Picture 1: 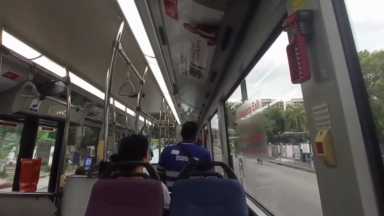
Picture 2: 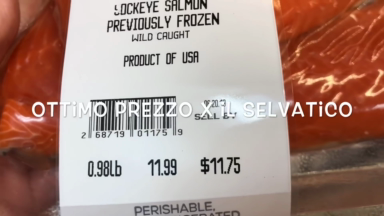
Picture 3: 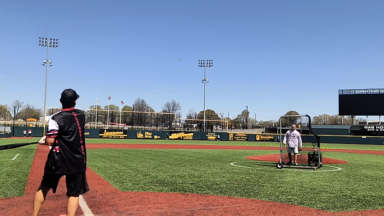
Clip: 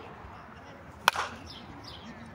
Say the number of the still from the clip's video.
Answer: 3